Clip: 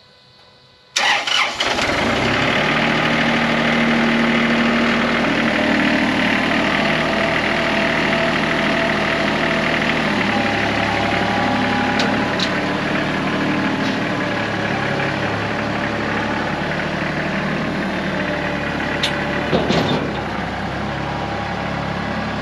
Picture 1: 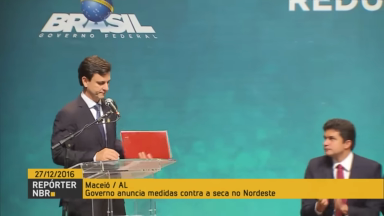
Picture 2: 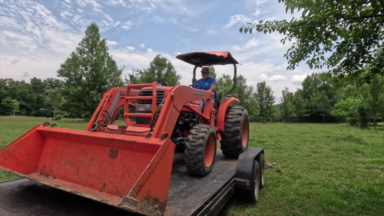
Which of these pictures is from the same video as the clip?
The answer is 2